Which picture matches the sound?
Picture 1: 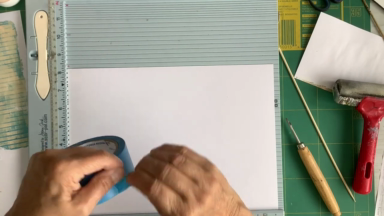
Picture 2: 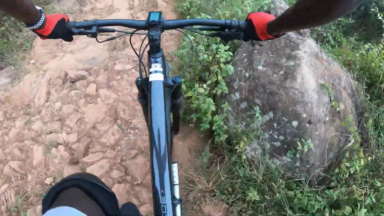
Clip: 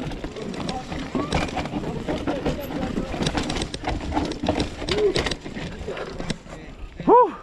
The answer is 2